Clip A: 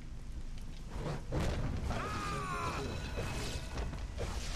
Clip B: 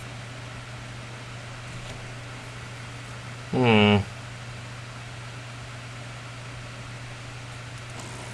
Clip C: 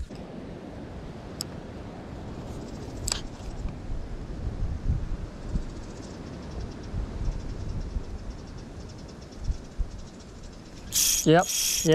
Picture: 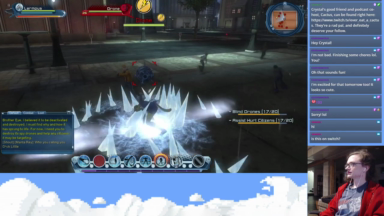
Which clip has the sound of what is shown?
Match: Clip A